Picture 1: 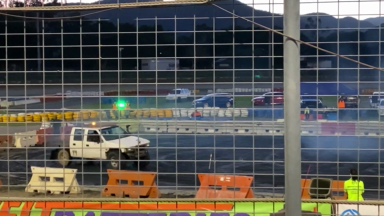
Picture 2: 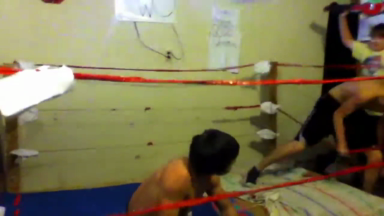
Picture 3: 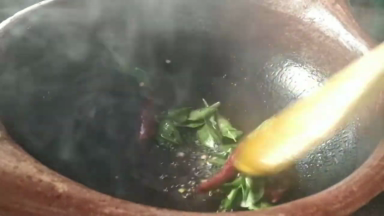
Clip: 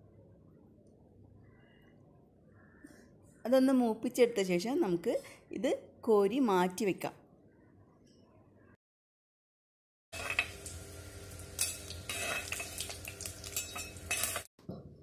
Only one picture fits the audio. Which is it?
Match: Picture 3